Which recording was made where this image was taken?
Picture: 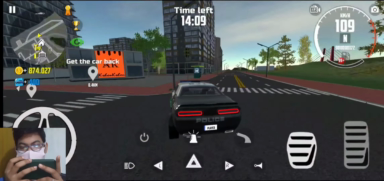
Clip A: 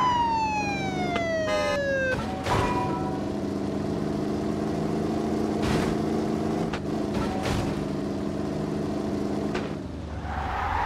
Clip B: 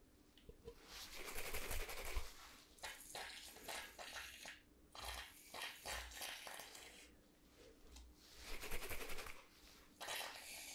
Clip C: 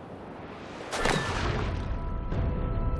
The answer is A